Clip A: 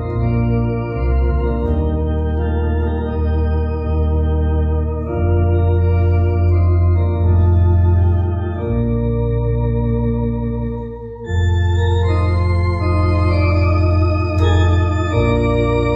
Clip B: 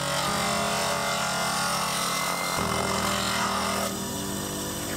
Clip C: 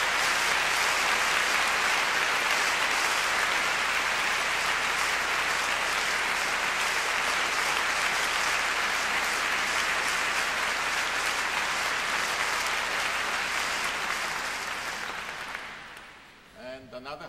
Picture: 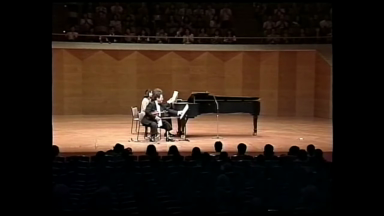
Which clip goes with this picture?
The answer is C